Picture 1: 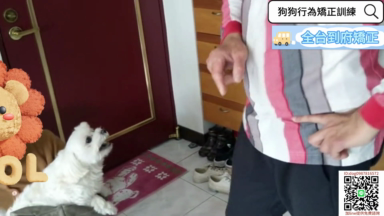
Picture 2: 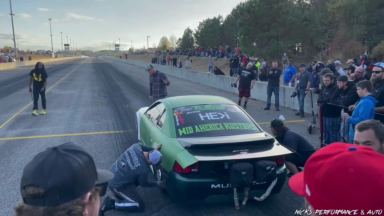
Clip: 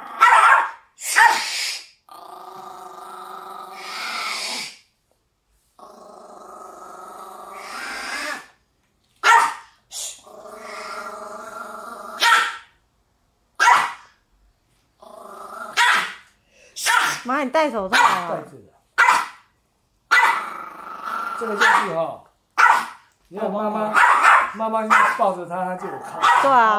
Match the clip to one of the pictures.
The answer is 1